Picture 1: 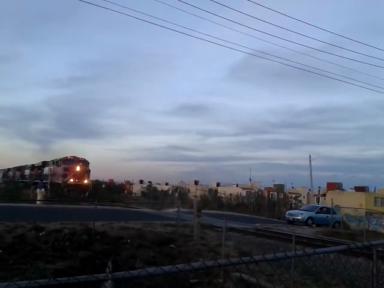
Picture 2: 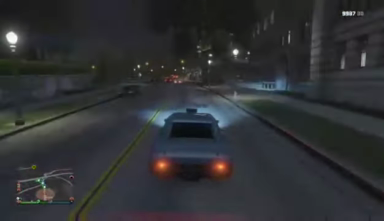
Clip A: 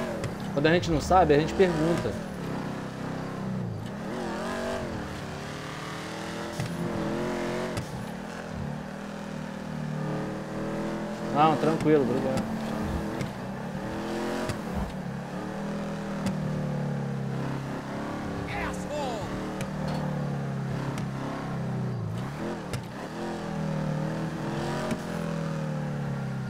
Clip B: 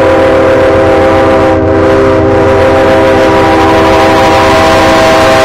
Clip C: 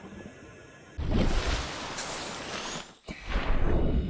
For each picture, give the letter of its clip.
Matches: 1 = B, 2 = A